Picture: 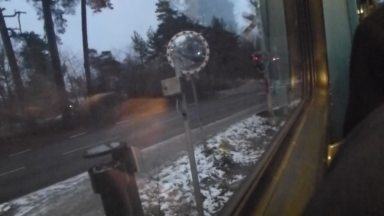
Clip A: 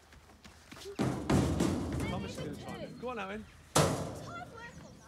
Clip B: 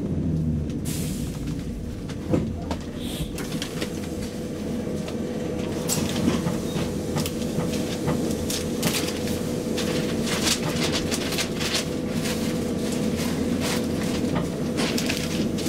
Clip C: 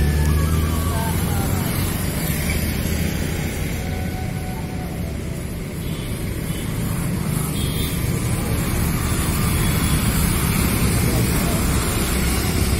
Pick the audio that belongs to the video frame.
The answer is B